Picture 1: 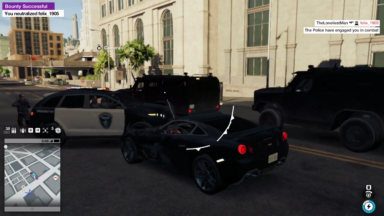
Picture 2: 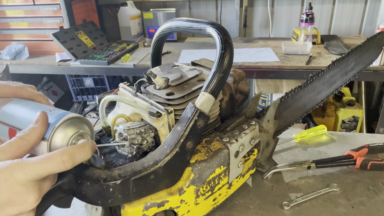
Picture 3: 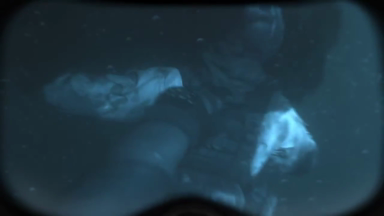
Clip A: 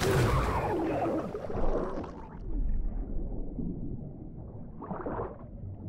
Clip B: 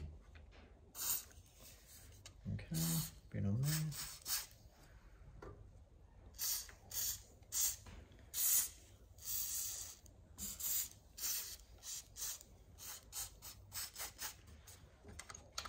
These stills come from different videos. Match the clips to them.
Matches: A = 3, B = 2